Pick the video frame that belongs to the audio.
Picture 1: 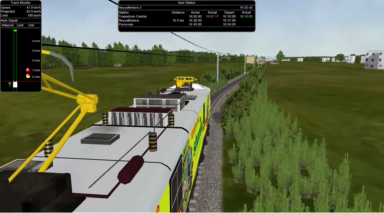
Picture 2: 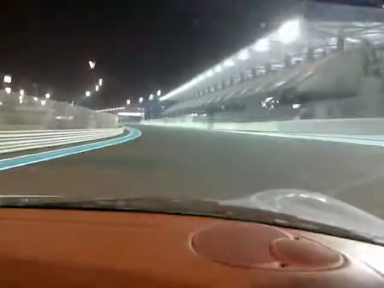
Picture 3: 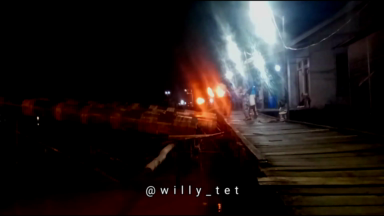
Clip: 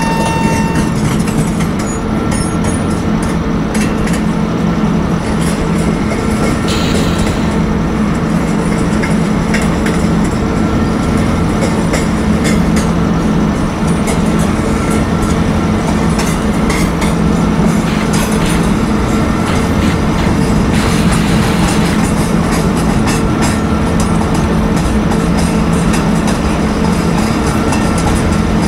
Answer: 1